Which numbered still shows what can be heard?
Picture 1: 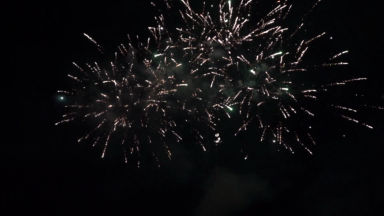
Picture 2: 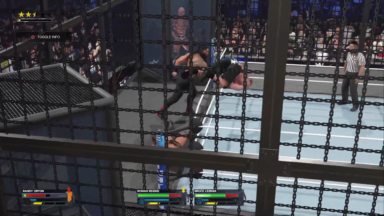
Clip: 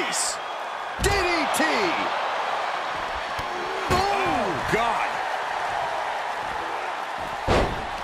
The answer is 2